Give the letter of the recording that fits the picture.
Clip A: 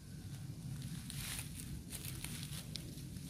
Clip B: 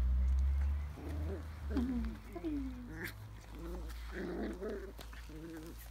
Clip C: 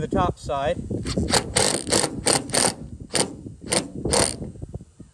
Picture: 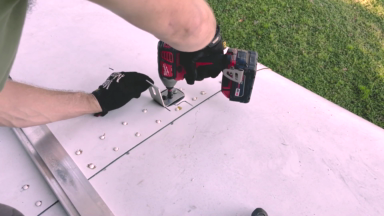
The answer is C